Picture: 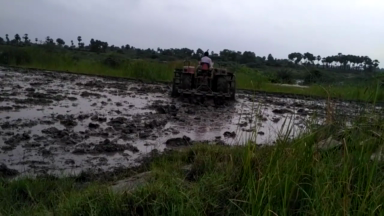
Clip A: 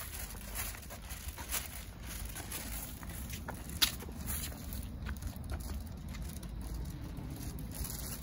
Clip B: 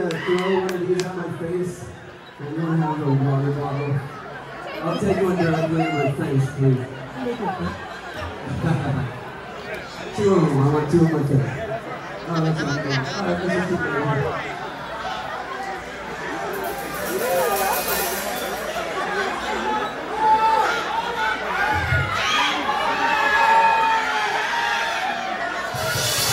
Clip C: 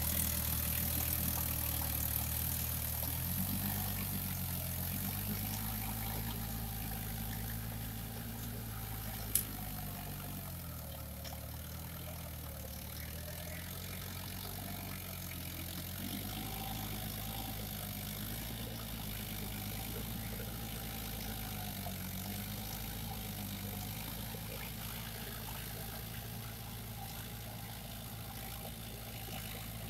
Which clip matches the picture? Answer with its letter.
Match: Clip C